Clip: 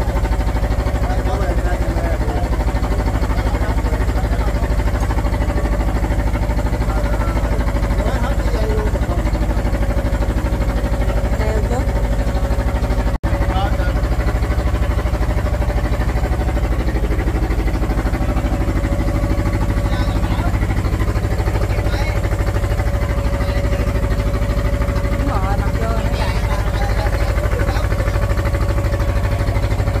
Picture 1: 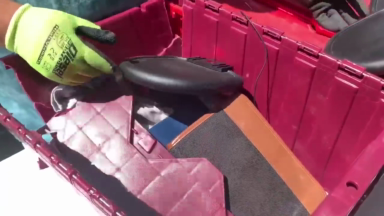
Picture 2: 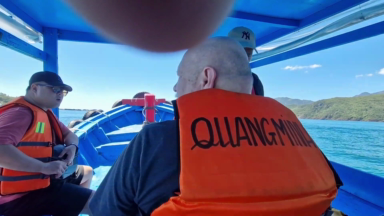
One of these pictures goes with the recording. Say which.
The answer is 2